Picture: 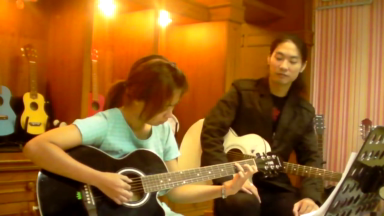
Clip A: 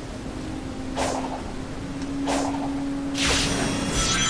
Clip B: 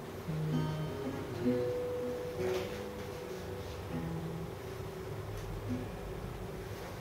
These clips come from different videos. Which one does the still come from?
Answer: B